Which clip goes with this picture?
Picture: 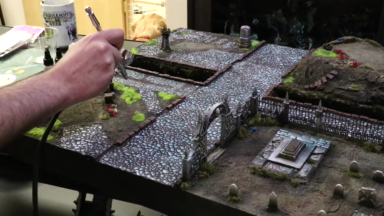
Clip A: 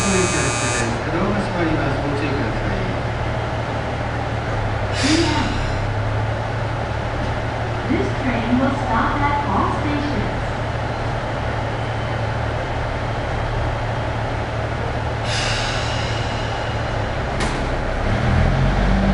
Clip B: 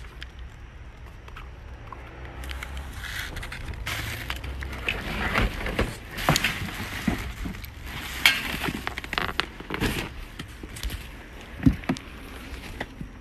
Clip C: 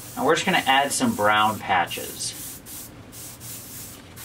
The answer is C